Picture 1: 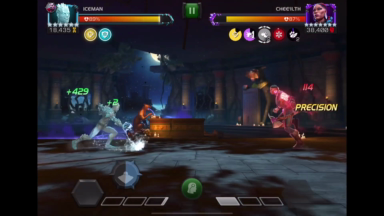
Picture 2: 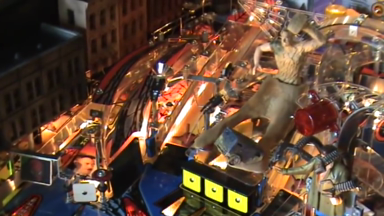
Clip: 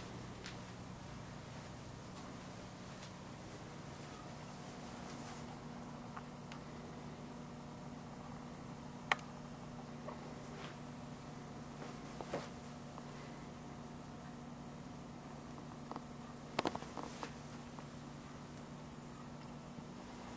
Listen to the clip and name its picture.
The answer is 2